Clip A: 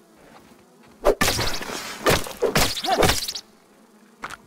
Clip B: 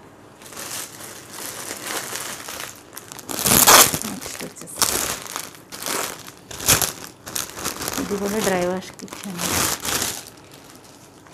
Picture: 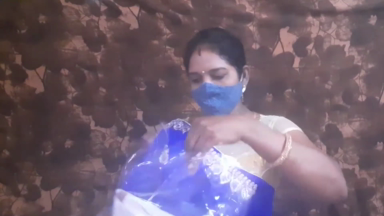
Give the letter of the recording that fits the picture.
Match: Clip B